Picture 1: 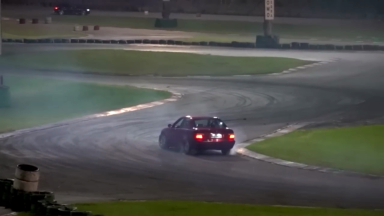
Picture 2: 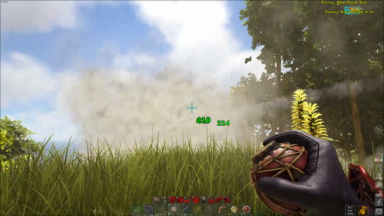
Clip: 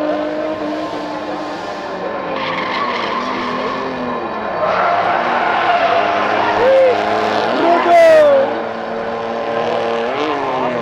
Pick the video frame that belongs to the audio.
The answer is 1